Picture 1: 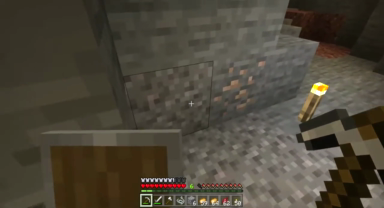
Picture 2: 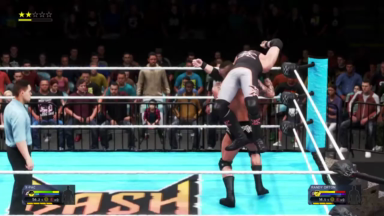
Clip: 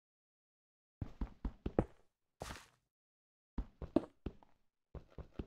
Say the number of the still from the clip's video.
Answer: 1